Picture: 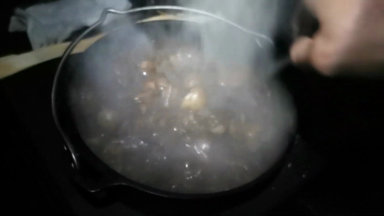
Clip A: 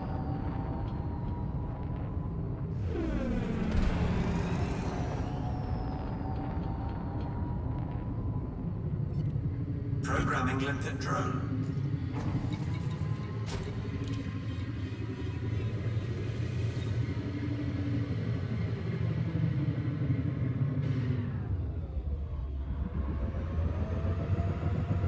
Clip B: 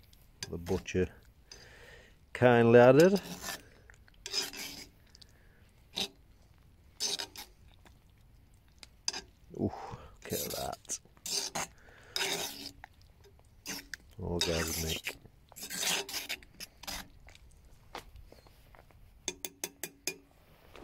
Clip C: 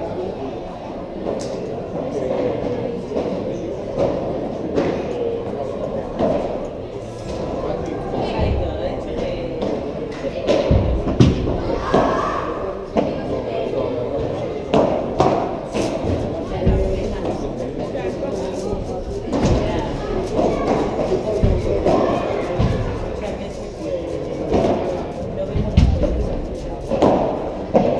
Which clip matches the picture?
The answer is B